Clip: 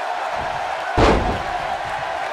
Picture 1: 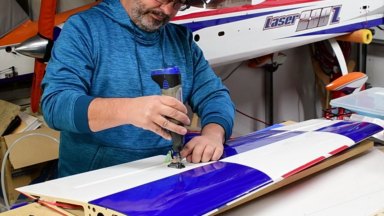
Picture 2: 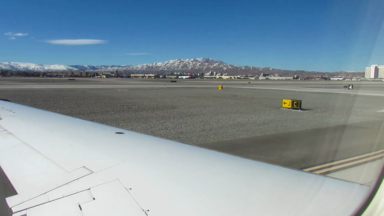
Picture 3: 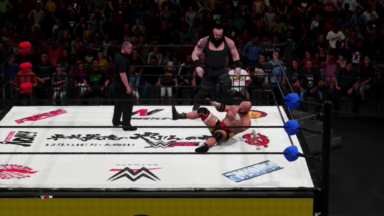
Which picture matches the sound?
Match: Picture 3